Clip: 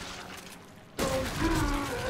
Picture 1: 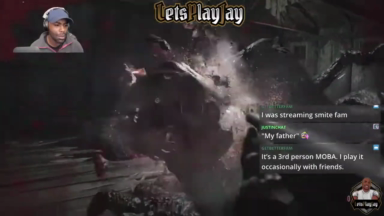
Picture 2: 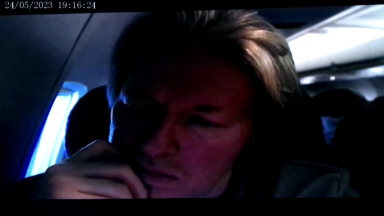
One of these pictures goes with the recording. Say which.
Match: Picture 1